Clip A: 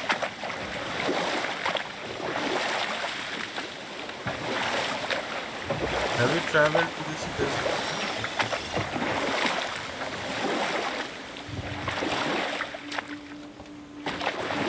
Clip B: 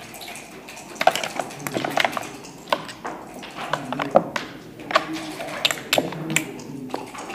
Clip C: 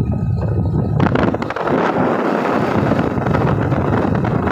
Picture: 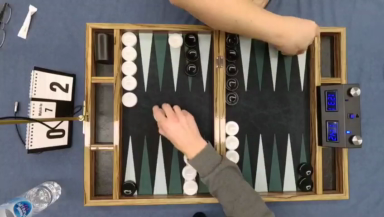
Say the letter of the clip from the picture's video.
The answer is B